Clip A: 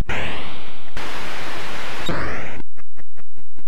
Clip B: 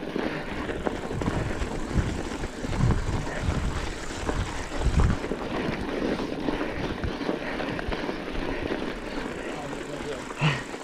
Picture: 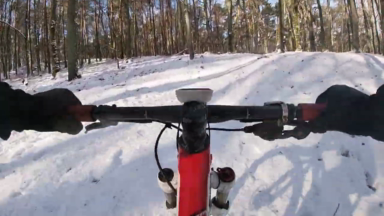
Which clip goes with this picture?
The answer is B